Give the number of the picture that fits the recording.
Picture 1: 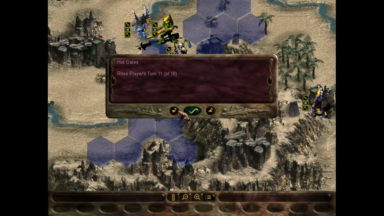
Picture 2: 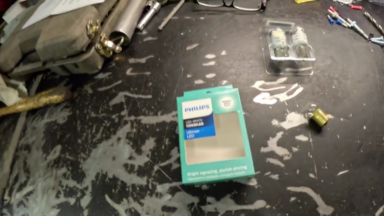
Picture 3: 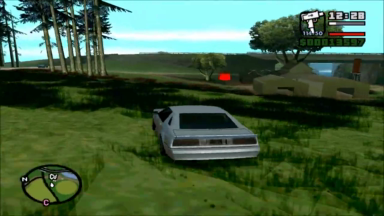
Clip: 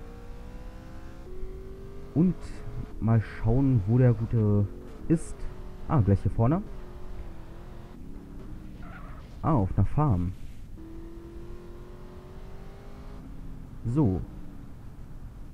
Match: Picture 3